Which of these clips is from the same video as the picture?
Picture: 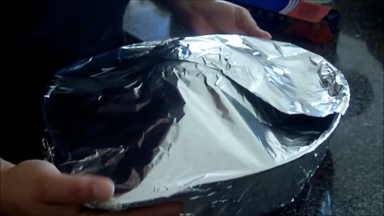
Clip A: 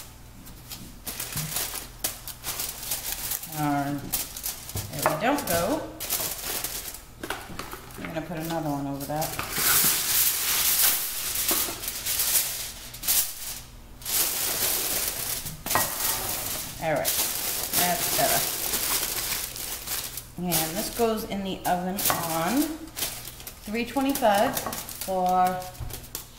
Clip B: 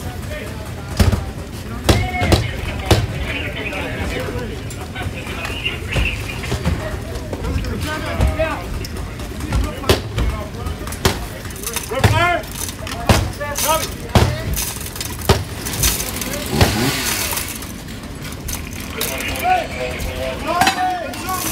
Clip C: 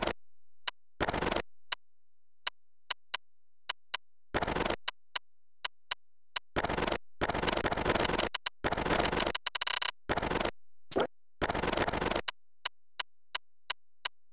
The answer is A